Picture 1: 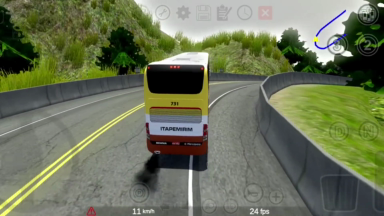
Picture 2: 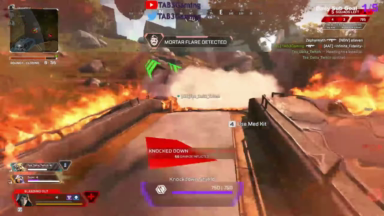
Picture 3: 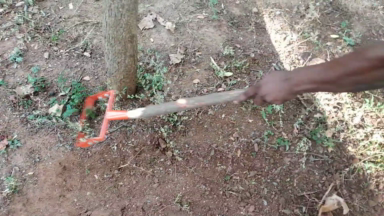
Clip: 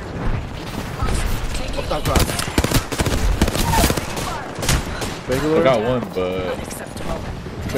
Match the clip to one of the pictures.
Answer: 2